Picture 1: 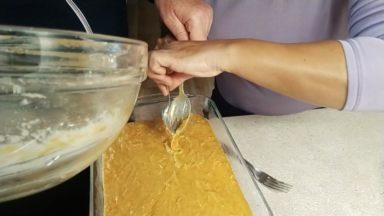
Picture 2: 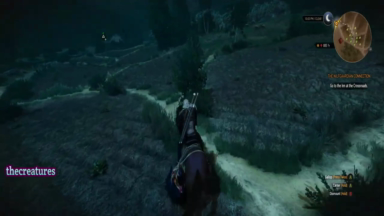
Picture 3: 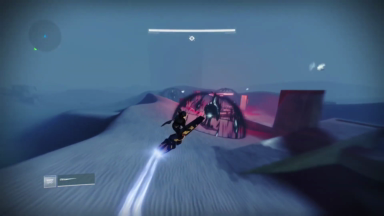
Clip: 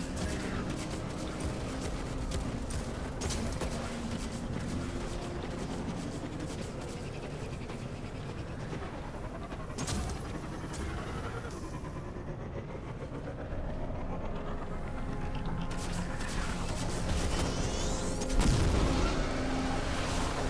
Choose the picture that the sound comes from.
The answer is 3